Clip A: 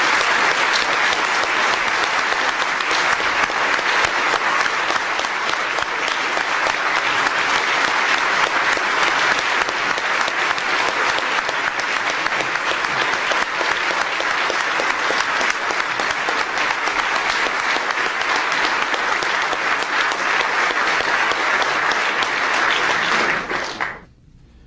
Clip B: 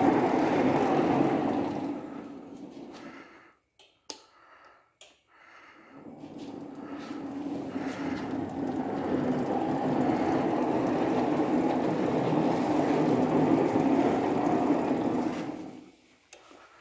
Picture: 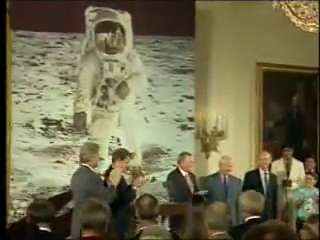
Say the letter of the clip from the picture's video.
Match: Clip A